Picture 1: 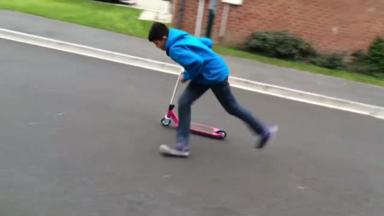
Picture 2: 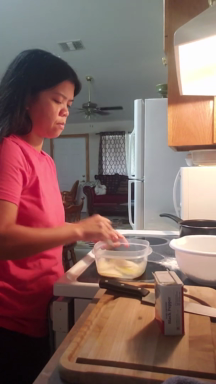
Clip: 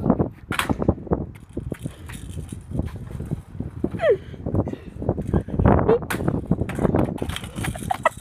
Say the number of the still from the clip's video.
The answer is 1